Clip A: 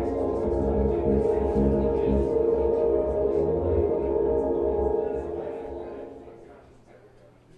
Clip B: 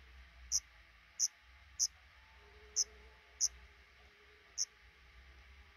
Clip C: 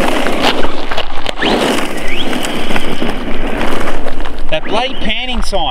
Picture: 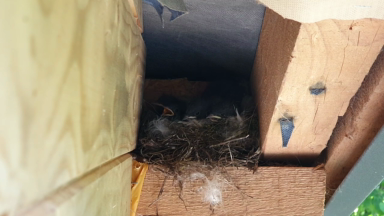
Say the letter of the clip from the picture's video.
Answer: B